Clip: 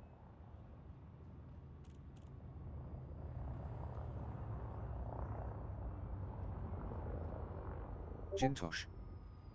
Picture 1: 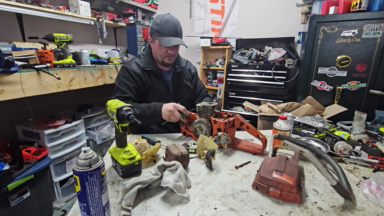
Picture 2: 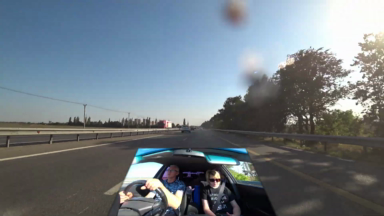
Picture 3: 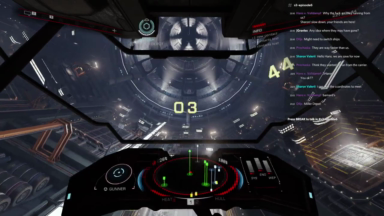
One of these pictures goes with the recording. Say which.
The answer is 3